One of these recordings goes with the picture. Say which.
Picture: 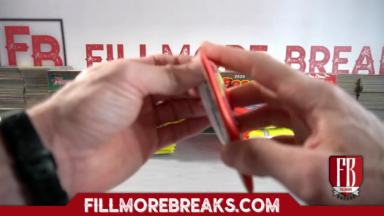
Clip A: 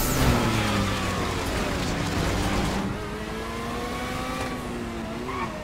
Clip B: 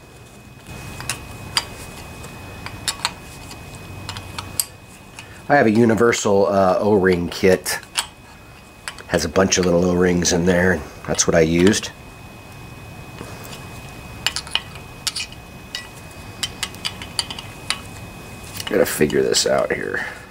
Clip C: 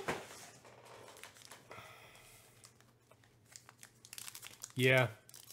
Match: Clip C